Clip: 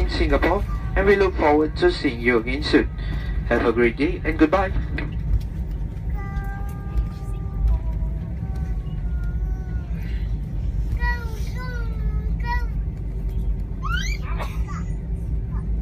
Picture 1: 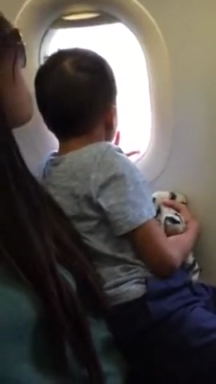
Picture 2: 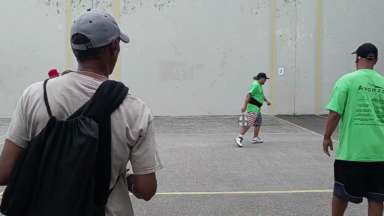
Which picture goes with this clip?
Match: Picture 1